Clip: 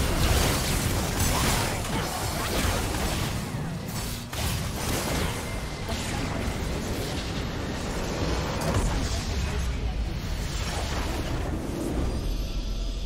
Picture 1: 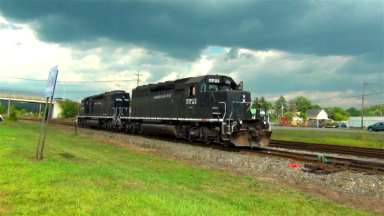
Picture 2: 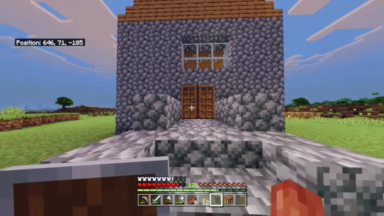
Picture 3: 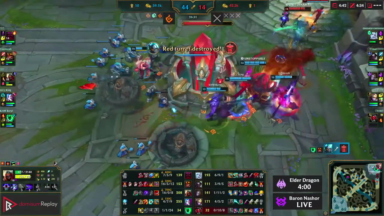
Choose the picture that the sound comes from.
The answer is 3